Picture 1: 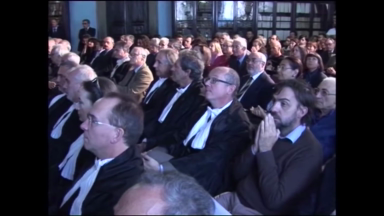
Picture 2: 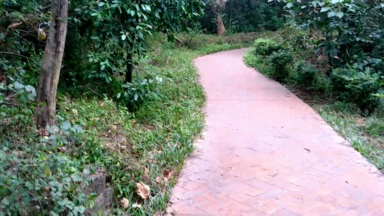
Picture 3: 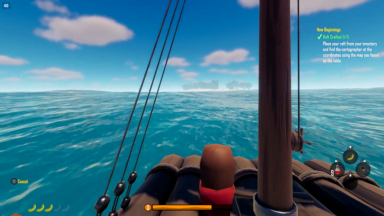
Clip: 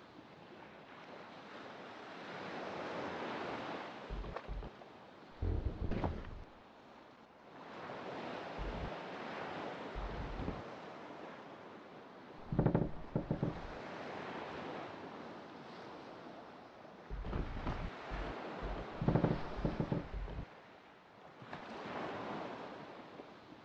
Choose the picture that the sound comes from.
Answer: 3